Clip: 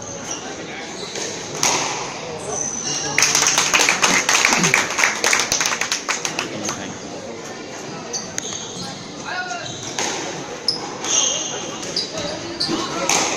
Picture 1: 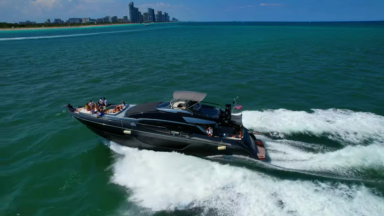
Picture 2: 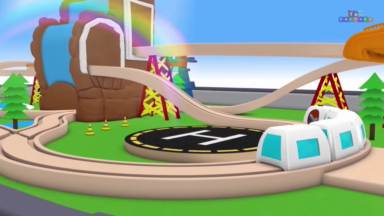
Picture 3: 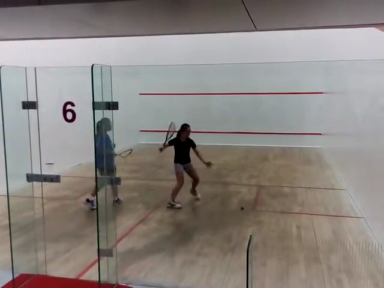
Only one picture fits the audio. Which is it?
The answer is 3